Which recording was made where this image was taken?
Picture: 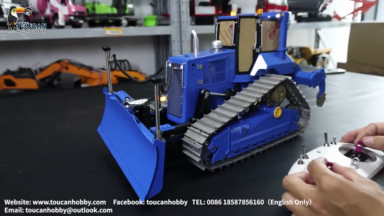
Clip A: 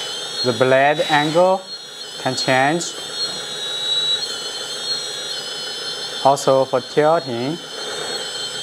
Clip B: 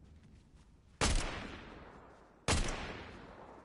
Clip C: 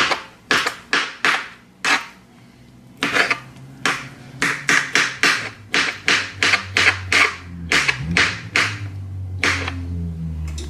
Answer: A